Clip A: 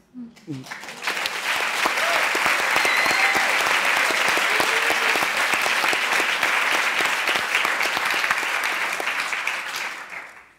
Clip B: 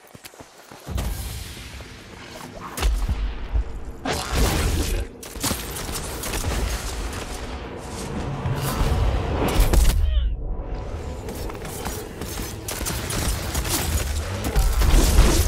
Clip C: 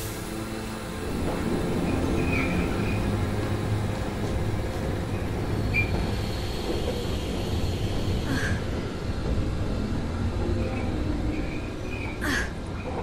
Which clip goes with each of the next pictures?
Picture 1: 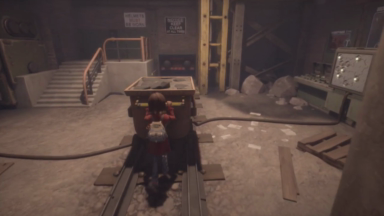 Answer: C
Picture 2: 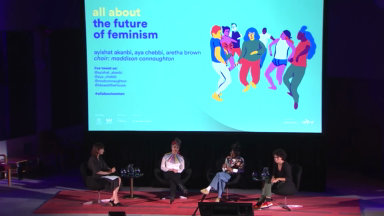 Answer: A